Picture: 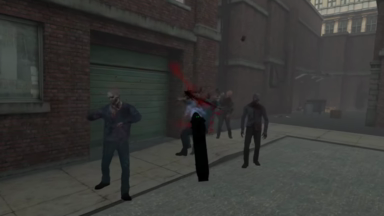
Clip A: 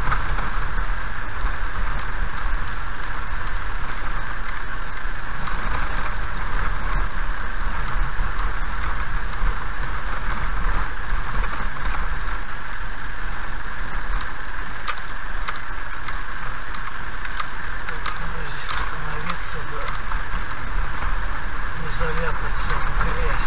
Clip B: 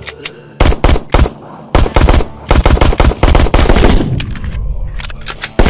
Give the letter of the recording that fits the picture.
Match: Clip B